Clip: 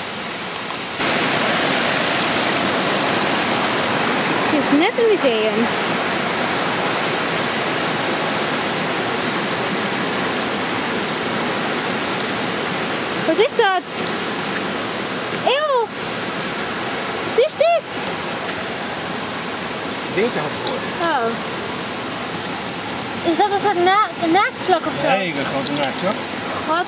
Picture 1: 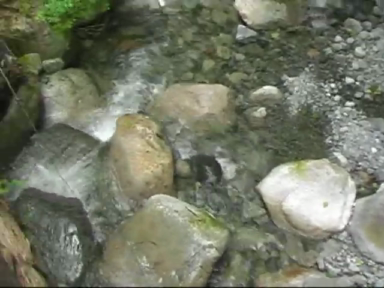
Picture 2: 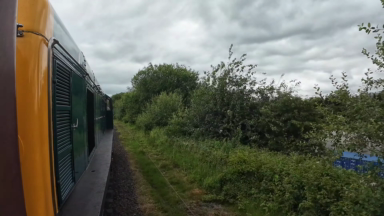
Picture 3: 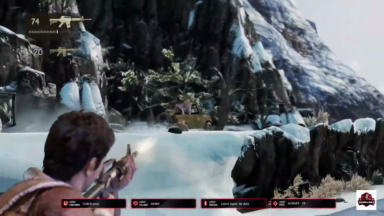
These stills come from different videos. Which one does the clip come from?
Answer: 1